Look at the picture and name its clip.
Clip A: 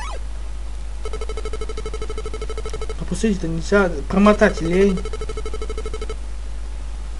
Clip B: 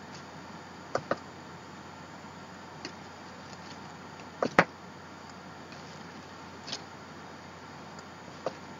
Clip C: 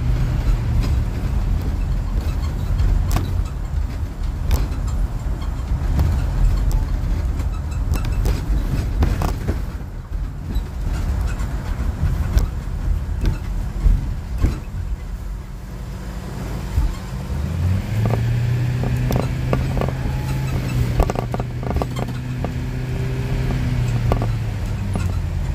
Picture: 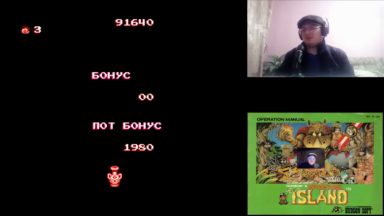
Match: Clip A